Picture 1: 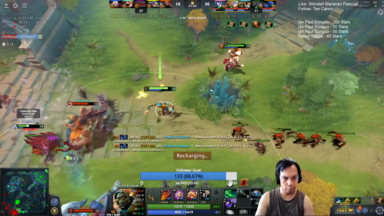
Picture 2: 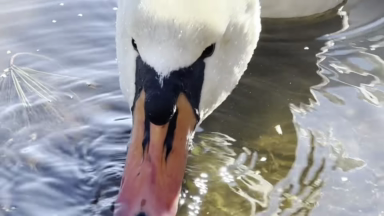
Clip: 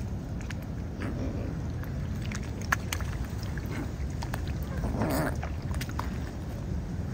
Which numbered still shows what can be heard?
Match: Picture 2